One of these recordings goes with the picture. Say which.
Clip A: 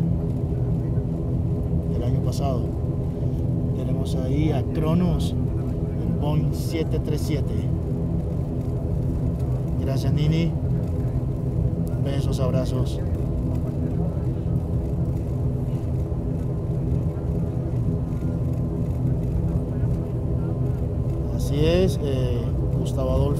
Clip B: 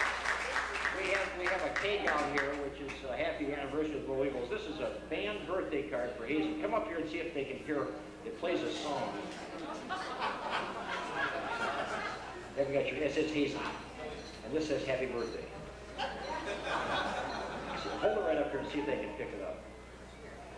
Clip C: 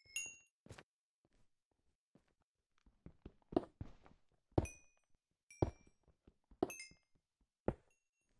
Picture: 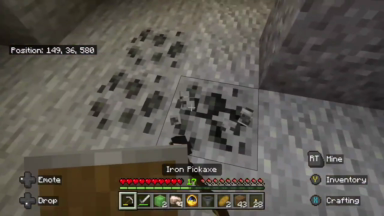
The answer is C